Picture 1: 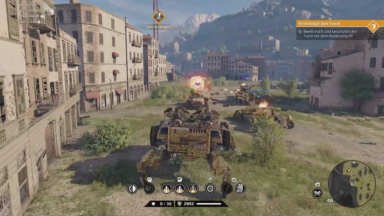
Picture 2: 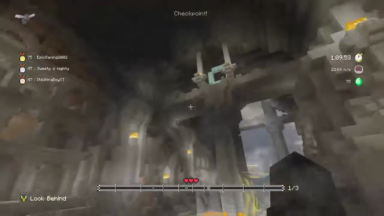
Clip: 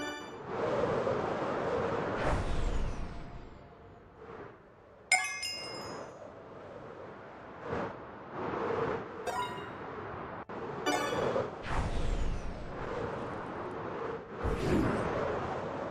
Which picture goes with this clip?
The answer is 2